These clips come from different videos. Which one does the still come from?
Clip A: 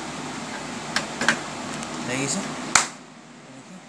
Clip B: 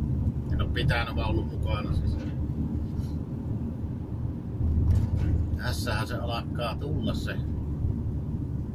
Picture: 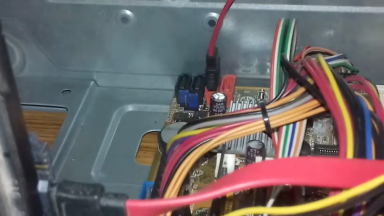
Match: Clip A